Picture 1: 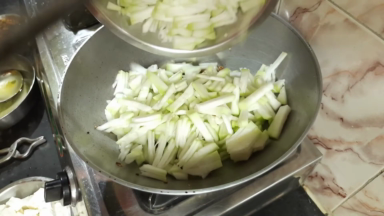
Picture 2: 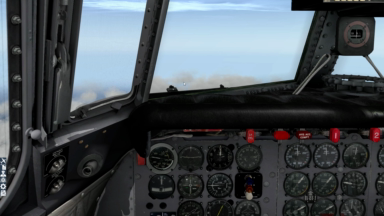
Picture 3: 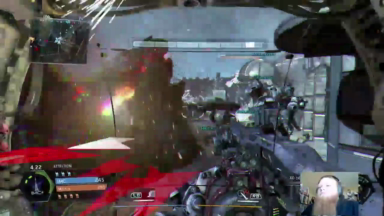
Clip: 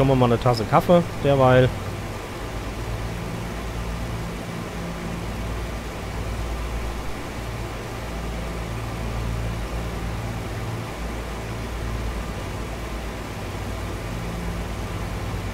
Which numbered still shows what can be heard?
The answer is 2